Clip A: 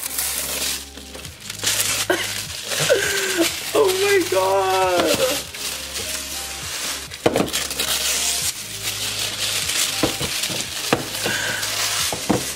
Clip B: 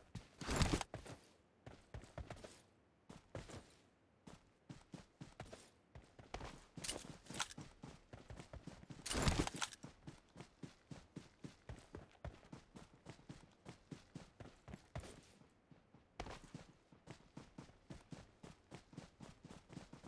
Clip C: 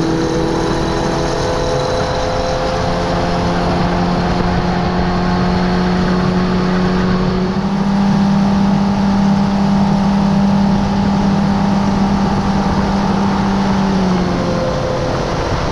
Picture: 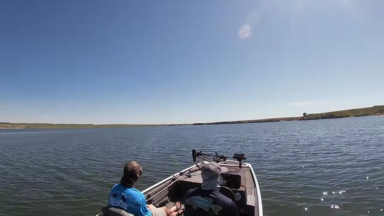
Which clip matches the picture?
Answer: C